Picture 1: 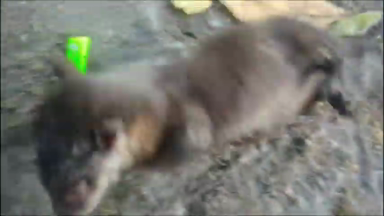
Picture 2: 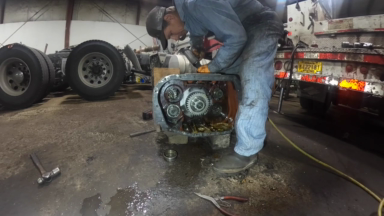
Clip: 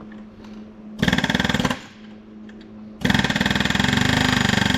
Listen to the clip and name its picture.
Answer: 2